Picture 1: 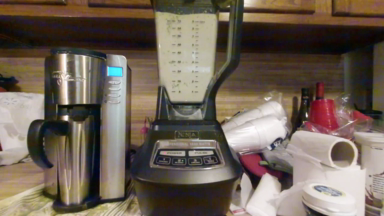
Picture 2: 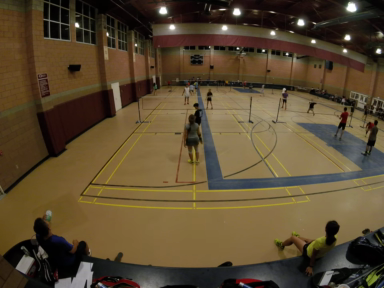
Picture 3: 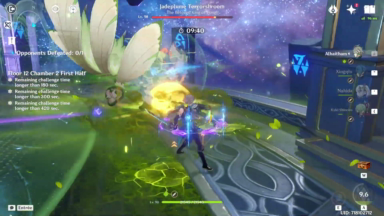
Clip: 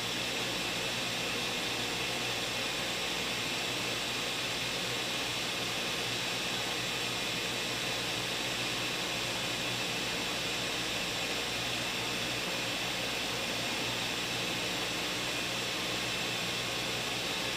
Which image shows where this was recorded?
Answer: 1